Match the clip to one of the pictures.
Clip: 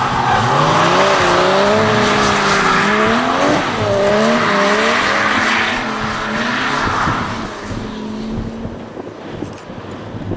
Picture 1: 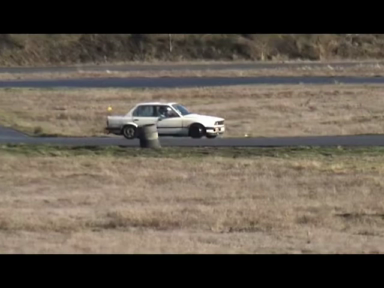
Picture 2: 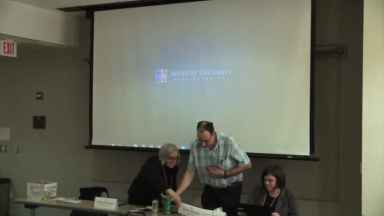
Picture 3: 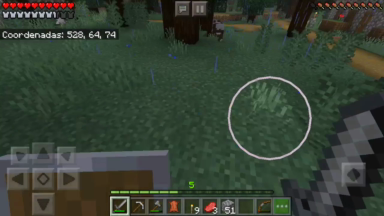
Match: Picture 1